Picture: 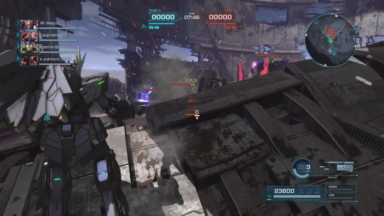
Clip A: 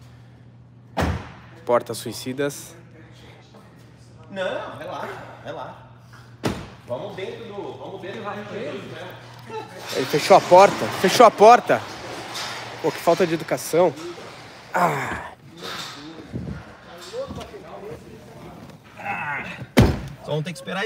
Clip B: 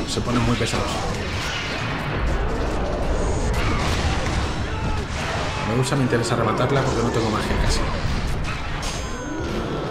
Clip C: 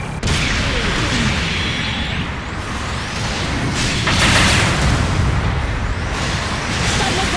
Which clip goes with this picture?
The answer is C